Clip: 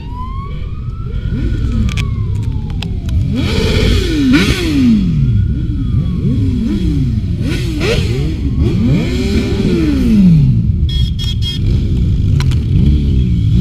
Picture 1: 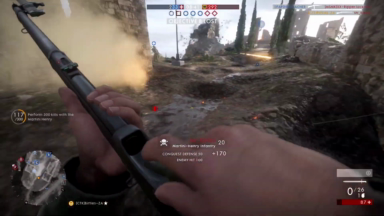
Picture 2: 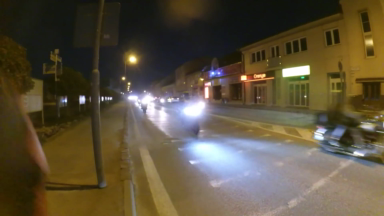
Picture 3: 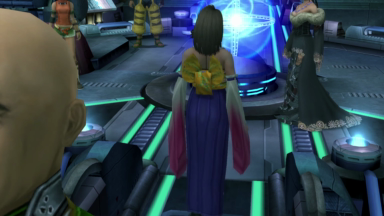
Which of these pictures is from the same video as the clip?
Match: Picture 2